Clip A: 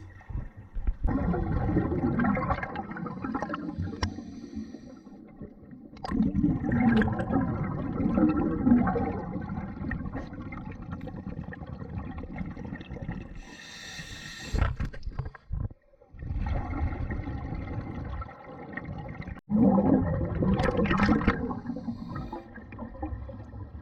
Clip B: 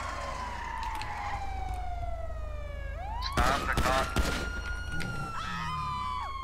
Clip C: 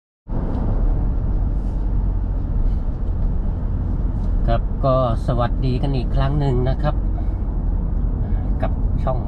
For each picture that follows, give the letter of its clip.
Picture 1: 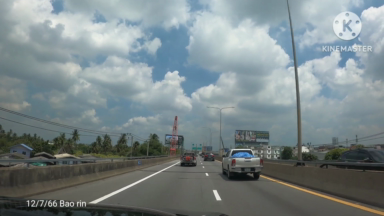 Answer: C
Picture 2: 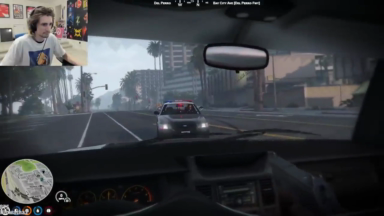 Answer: B